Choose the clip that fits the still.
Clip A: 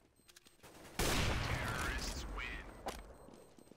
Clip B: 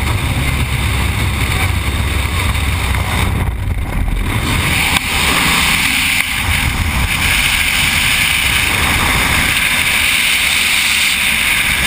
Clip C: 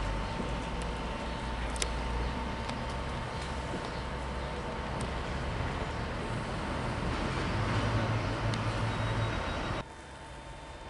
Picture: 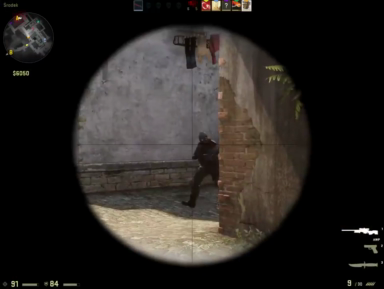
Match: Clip A